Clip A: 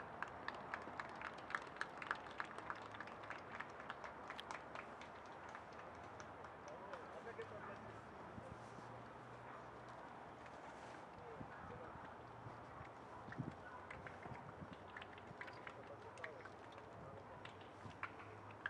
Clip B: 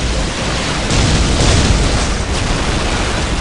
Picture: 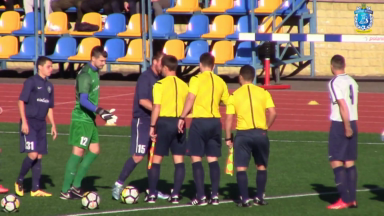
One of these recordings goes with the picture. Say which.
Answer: A